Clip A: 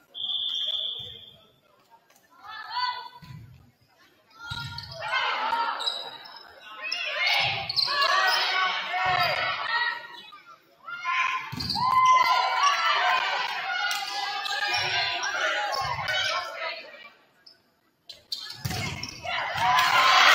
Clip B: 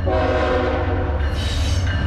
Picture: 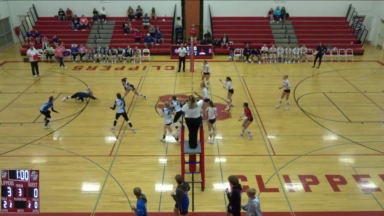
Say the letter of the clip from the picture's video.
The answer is A